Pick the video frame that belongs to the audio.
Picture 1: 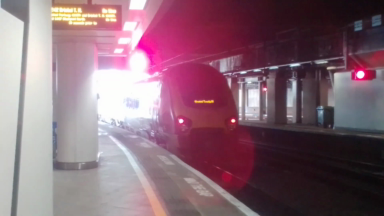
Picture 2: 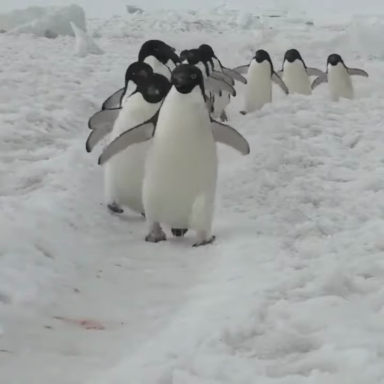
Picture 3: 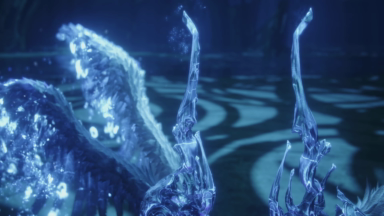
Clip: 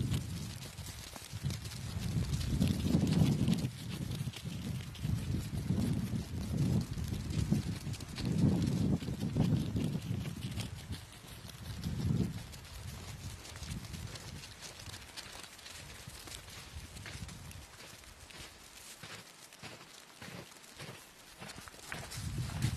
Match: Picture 2